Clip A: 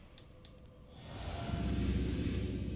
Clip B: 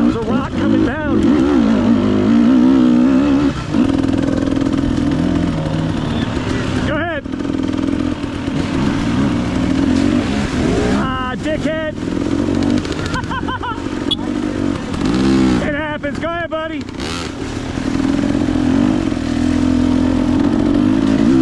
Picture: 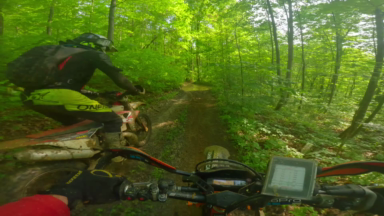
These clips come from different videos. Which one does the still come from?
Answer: B